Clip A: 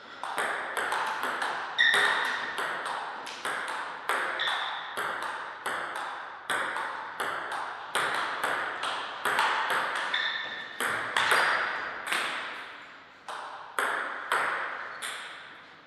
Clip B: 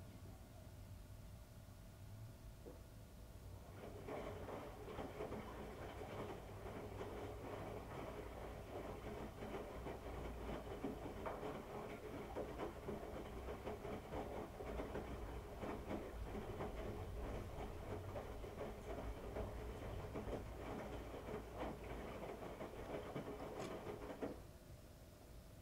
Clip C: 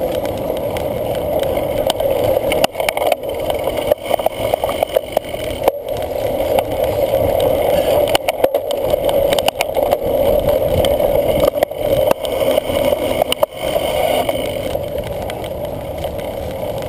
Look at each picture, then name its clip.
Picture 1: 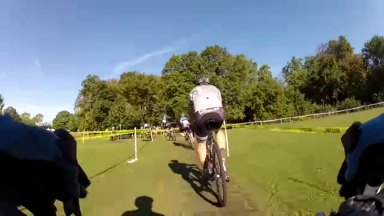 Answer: C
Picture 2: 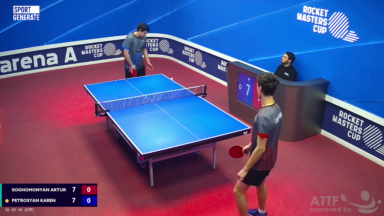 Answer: A